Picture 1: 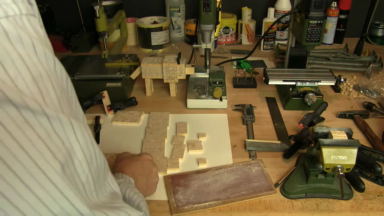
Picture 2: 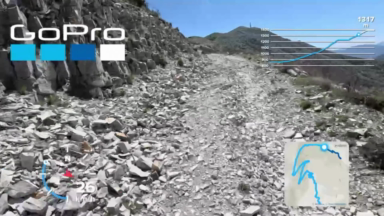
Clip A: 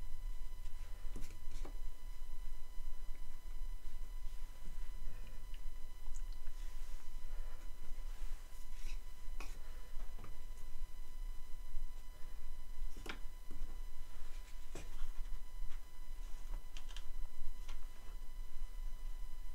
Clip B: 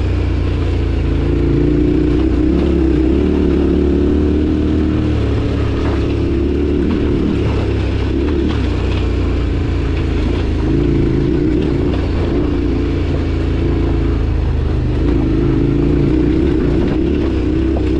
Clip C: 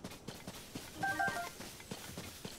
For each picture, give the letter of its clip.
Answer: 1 A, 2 B